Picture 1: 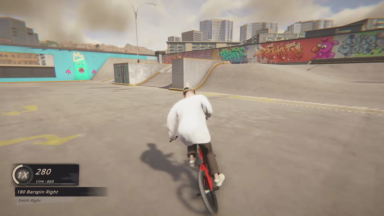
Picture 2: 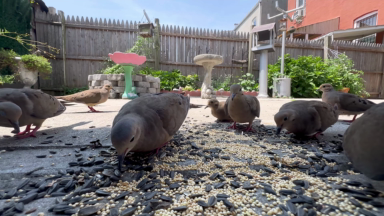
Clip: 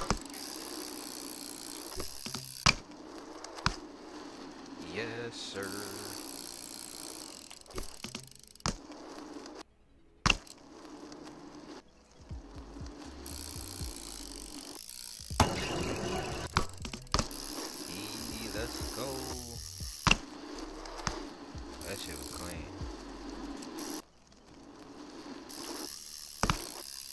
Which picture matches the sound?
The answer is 1